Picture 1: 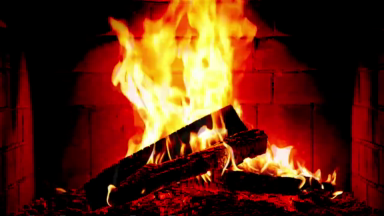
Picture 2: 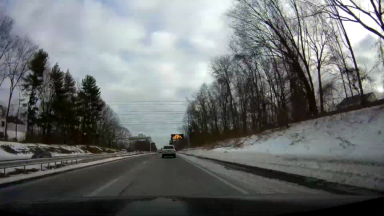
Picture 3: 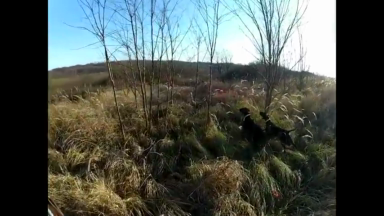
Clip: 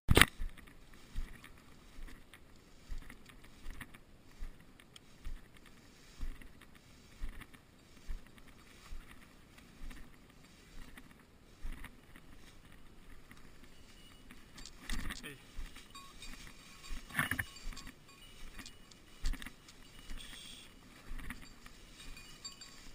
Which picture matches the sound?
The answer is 3